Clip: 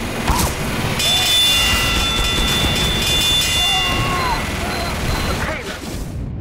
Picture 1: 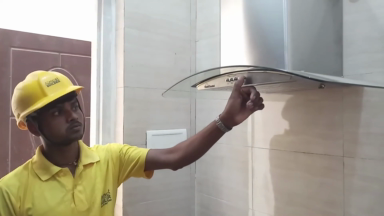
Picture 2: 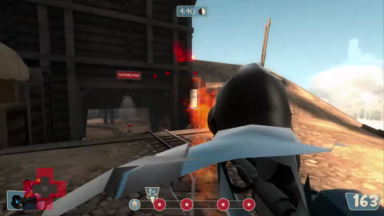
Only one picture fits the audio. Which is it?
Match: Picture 2